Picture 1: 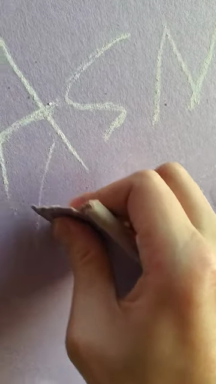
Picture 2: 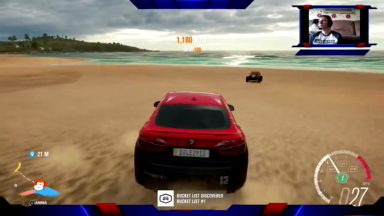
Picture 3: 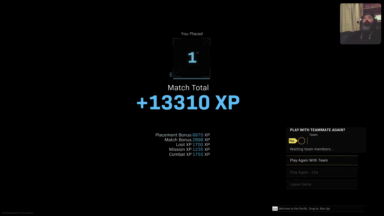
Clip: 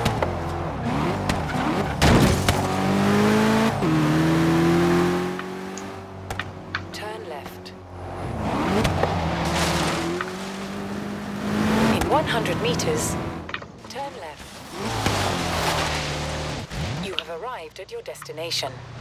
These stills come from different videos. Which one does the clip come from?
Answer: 2